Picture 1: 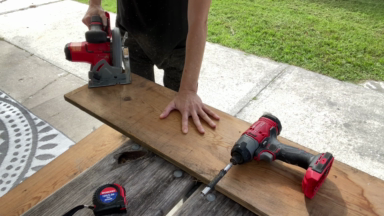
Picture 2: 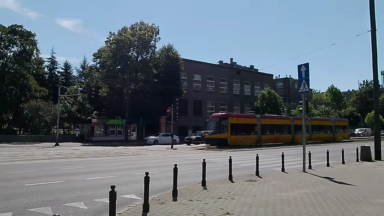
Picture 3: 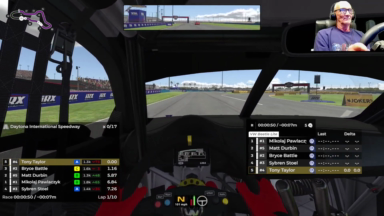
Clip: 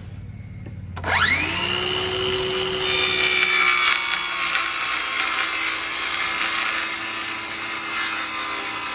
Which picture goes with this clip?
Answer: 1